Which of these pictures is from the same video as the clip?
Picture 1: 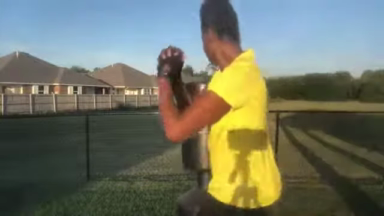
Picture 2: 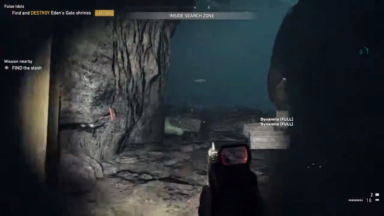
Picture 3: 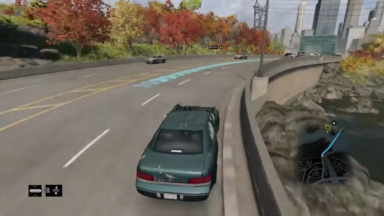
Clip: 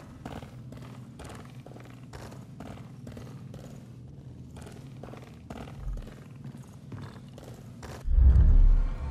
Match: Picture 2